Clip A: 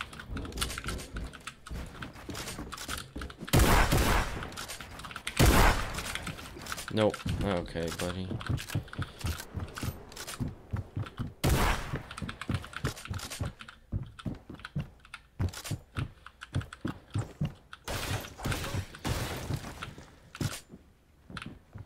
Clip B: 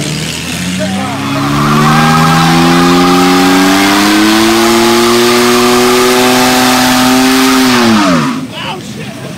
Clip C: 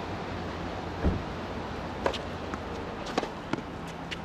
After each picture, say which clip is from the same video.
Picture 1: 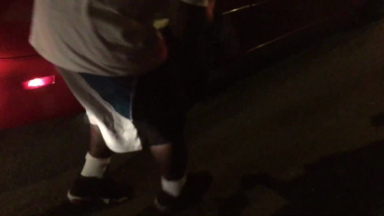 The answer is B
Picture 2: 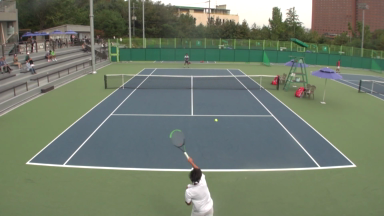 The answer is C